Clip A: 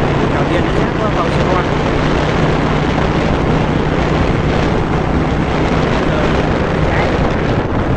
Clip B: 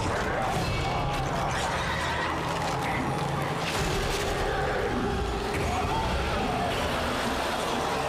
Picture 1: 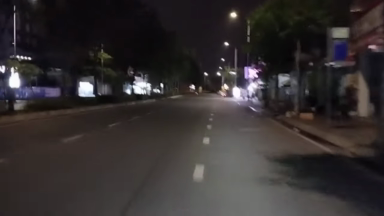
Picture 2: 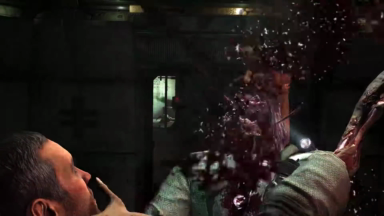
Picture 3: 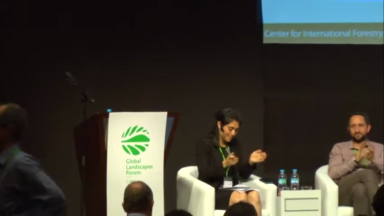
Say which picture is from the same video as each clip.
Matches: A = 1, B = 2